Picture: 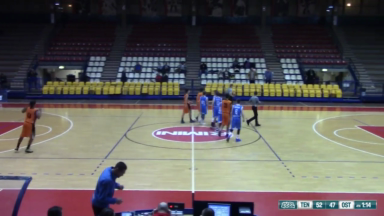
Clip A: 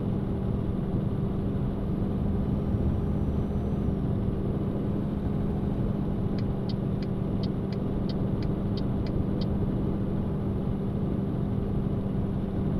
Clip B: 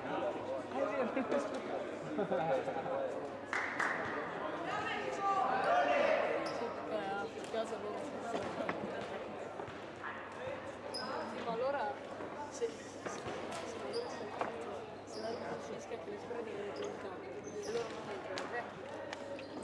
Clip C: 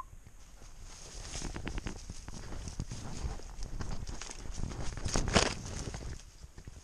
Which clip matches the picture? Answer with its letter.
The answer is B